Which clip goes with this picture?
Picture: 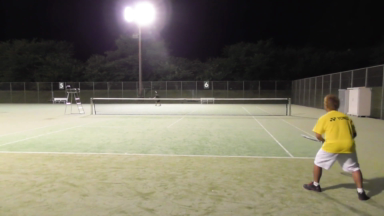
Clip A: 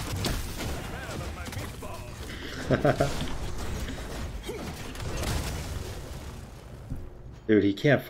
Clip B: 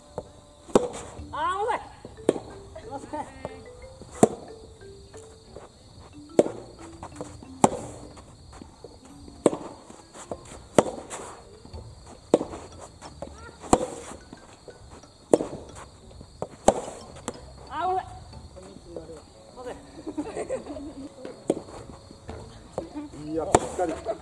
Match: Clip B